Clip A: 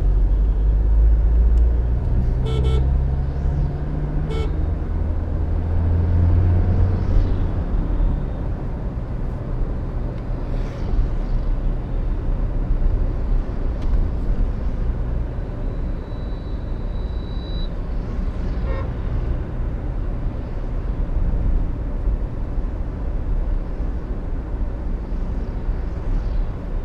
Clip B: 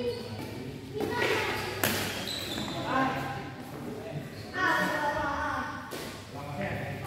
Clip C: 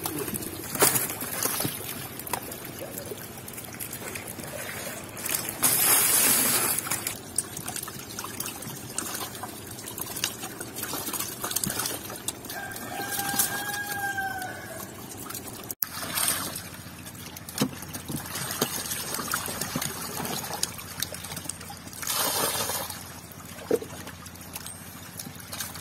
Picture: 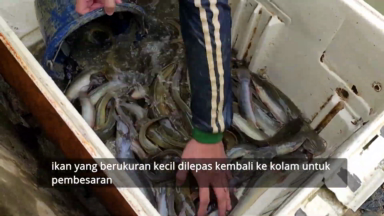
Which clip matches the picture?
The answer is C